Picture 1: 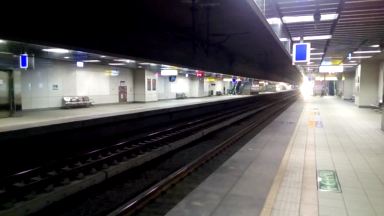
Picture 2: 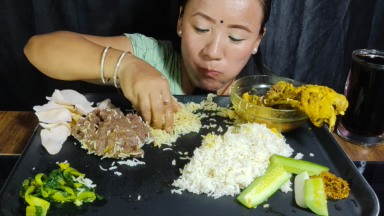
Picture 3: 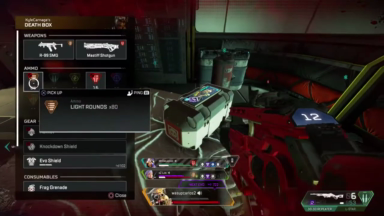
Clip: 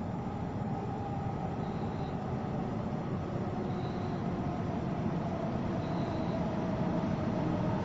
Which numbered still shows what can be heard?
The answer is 1